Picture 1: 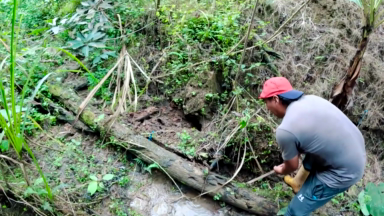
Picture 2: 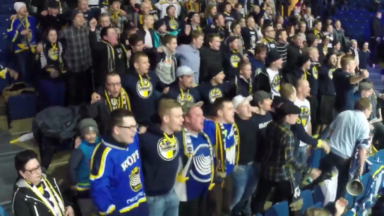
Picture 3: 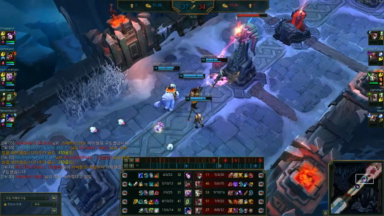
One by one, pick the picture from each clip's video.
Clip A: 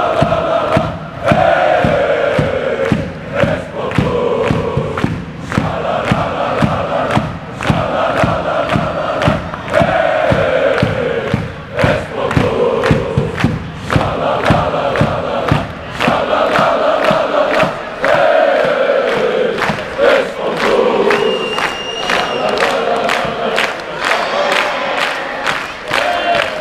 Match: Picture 2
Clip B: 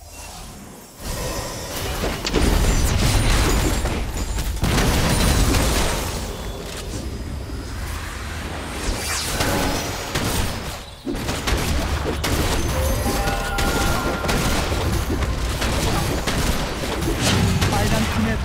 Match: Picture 3